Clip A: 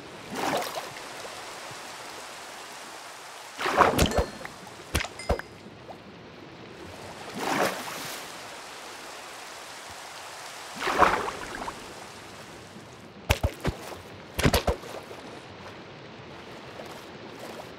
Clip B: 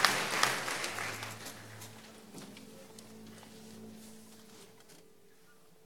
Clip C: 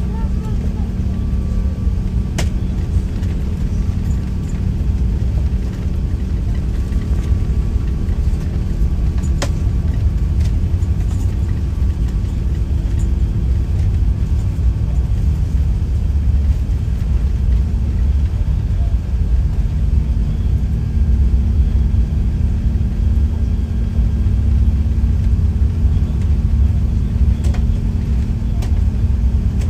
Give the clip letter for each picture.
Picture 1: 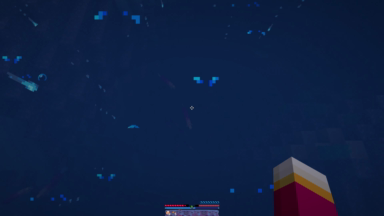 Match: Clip A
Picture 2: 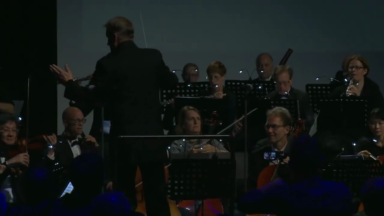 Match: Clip B